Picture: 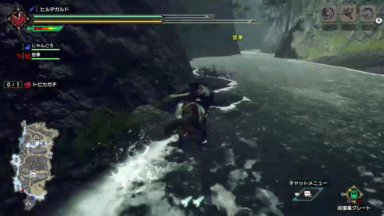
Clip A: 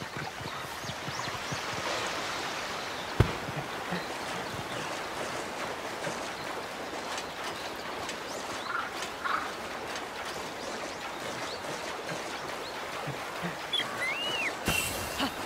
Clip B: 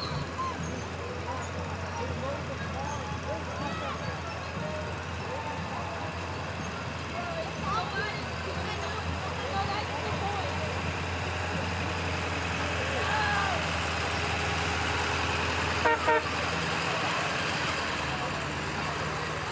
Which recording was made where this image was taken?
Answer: A